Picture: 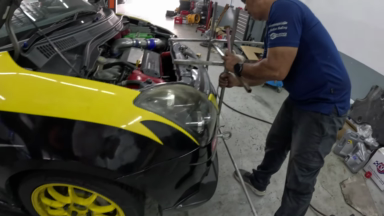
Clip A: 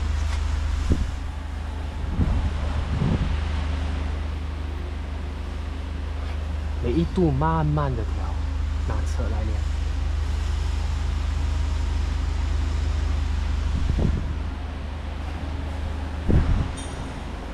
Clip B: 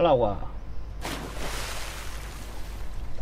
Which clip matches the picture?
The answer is A